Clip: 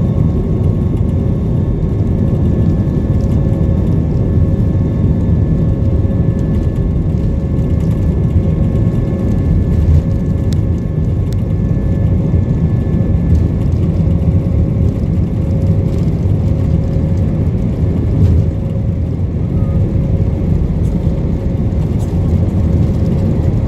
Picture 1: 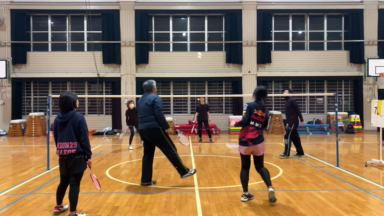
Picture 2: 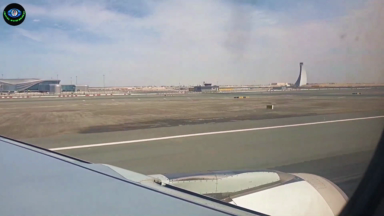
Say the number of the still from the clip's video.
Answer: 2